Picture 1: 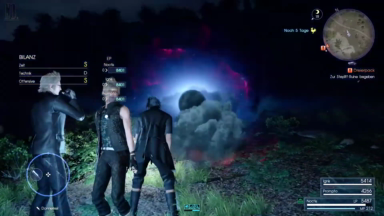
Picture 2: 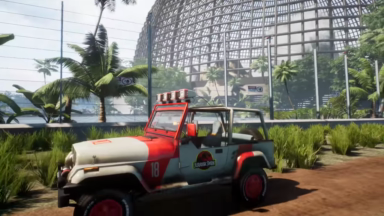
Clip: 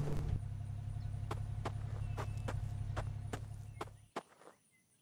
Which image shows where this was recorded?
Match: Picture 2